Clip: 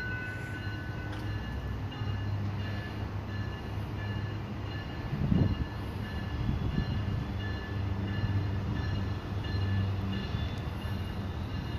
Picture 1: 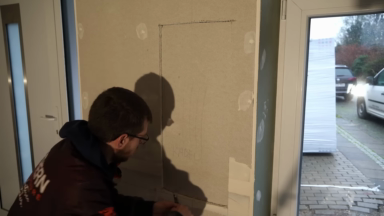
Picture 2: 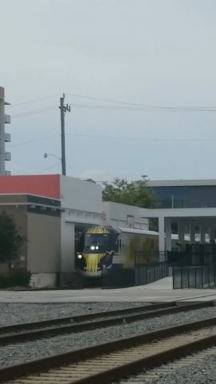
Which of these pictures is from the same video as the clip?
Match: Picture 2